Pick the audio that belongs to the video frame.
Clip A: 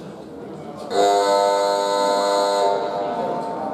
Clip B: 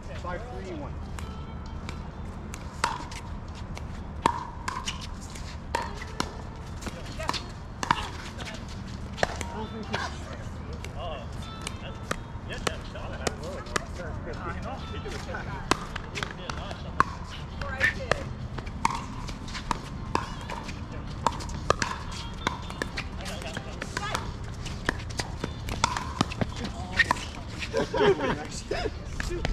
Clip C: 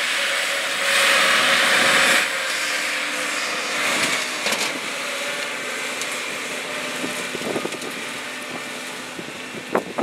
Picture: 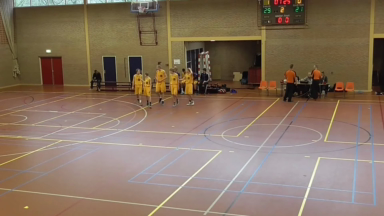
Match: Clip A